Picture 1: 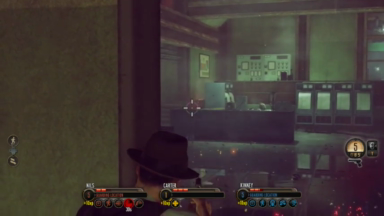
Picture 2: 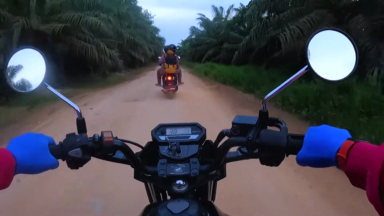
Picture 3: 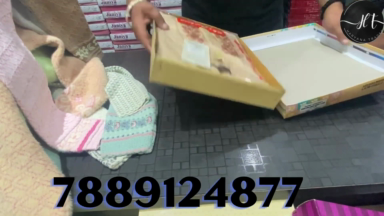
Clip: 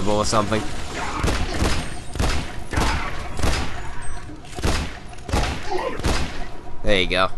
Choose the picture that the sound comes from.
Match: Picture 1